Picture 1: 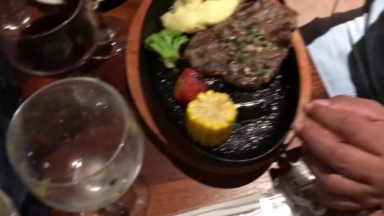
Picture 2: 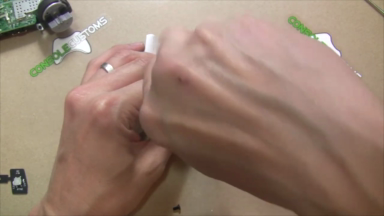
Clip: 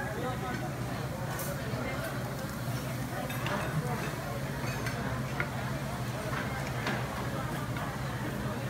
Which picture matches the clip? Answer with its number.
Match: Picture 1